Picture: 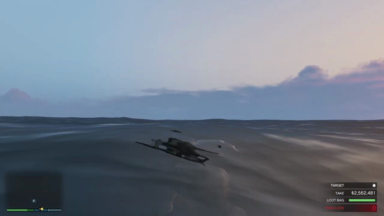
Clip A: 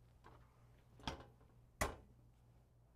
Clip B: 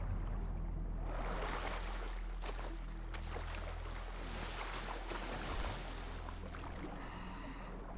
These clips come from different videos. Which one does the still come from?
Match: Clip B